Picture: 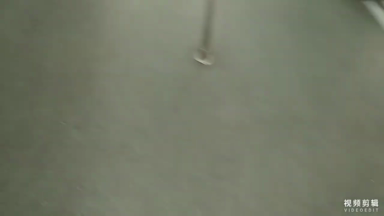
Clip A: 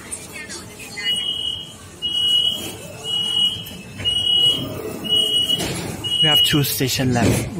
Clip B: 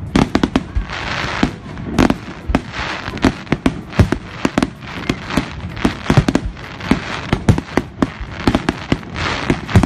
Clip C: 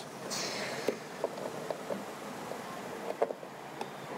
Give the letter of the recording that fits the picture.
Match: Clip A